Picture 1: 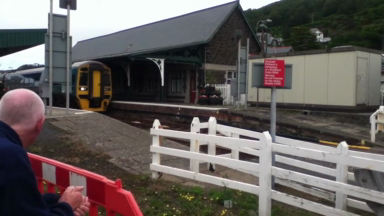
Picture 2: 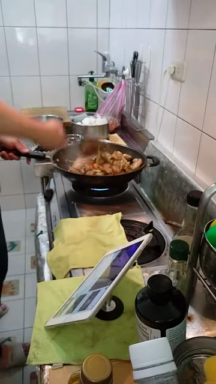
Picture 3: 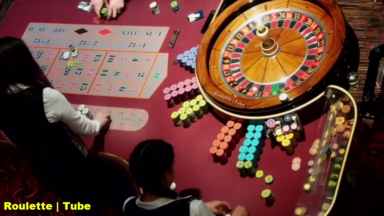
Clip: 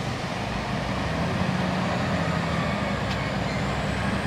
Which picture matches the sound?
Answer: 1